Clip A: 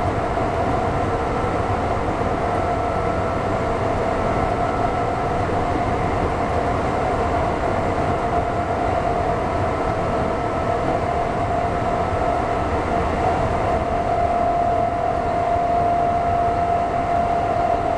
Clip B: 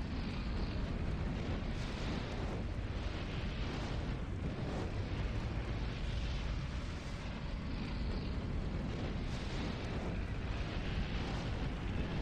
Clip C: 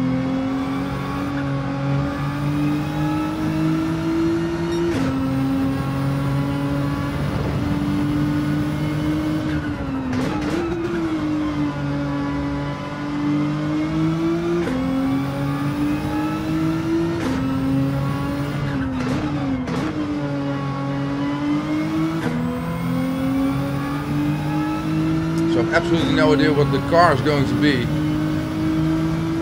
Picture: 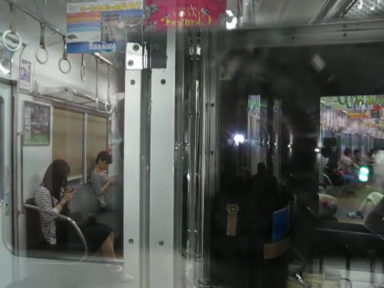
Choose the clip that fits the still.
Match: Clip A